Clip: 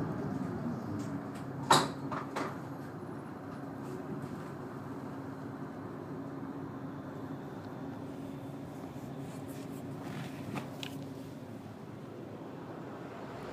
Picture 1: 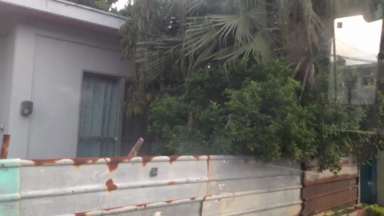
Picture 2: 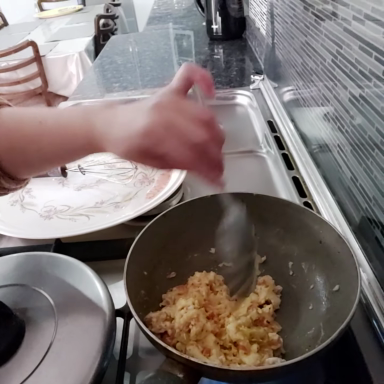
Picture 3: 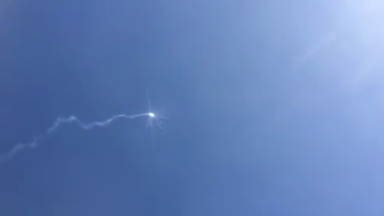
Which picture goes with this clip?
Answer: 1